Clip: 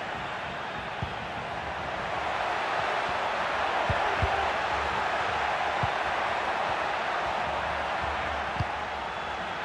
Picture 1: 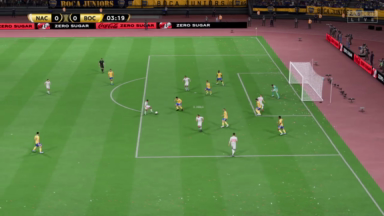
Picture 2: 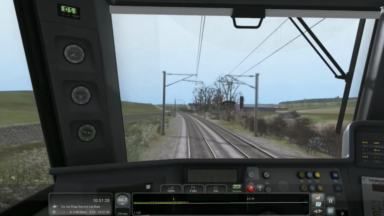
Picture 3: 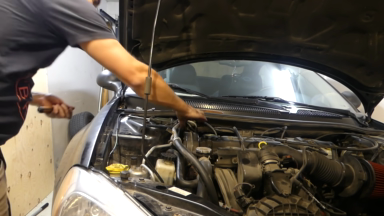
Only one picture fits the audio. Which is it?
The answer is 1